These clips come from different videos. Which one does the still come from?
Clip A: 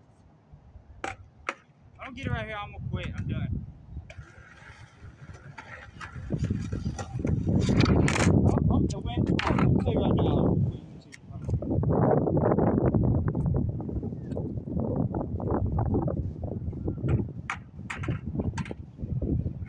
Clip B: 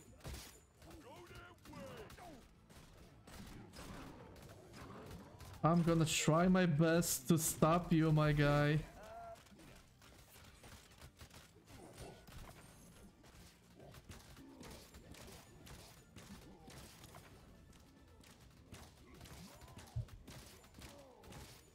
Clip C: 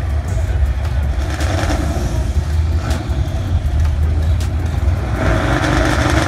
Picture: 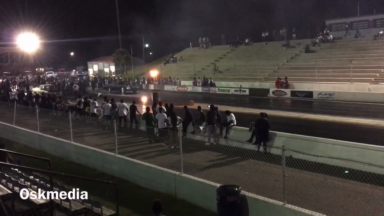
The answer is C